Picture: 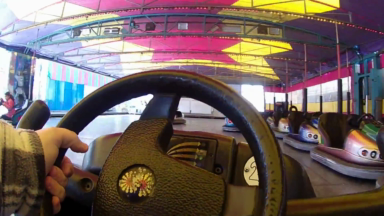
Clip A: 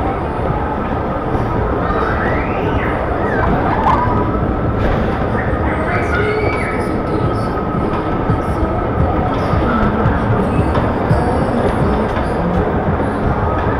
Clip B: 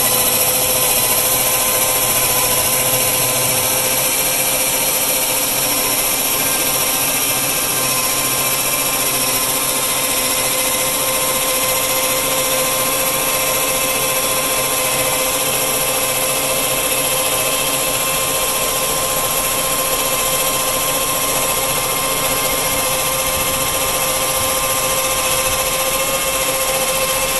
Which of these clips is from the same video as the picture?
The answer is A